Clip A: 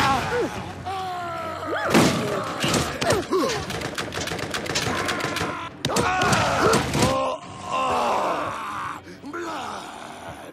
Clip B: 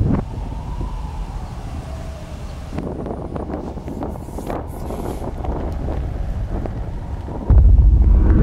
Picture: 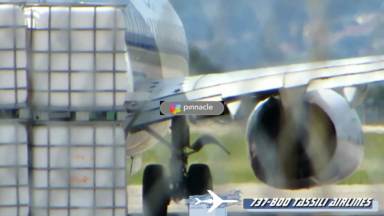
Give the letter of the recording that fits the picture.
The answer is B